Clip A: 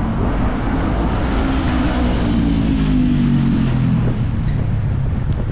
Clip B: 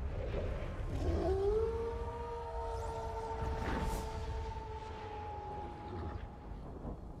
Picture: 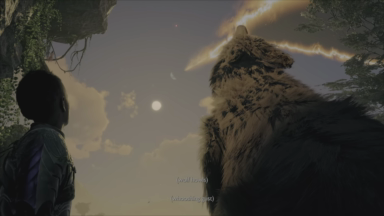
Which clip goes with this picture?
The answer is B